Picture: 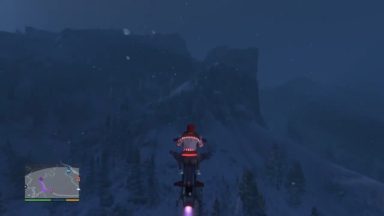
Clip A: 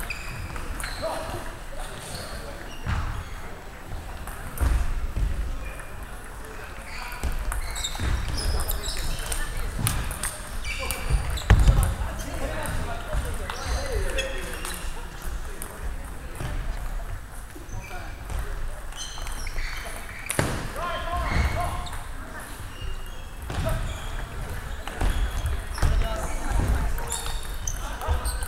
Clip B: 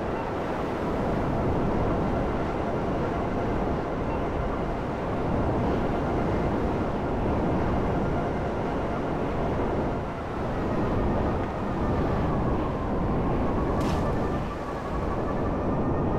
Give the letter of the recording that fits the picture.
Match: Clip B